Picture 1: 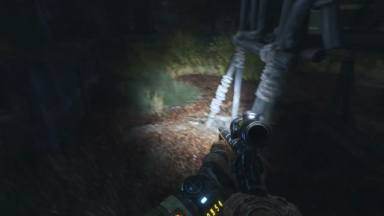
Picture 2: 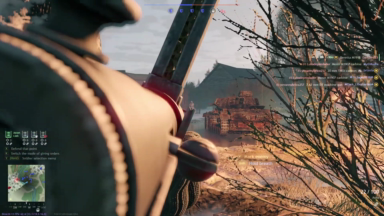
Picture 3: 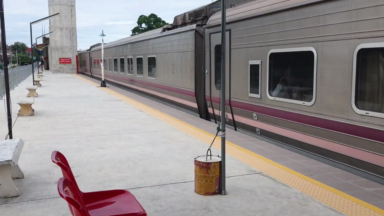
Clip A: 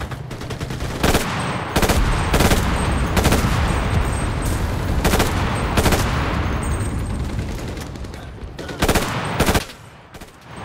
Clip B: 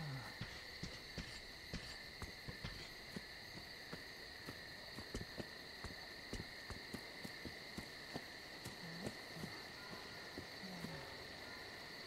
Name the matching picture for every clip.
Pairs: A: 2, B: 1